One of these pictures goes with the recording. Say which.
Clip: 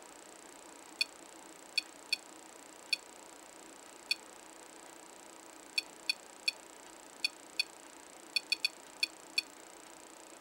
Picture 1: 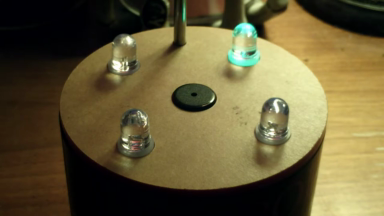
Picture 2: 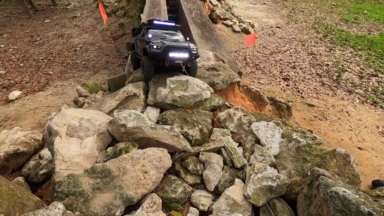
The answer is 1